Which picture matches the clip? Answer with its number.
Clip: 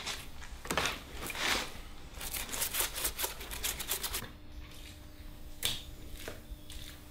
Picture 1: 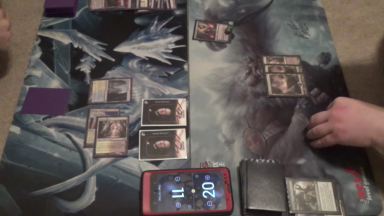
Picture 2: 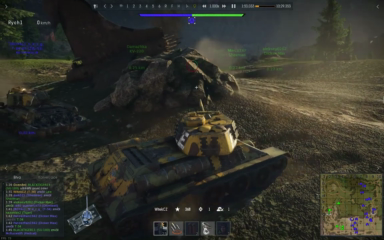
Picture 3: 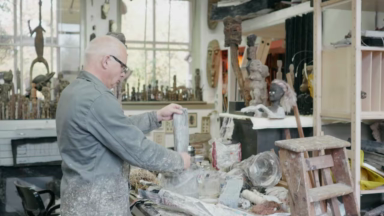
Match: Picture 3